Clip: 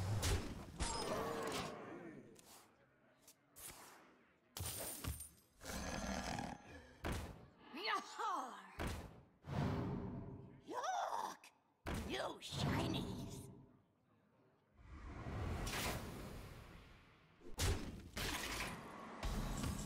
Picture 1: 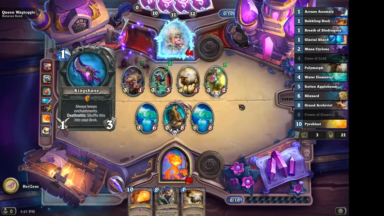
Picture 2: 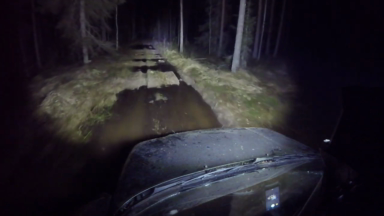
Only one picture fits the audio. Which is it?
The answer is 1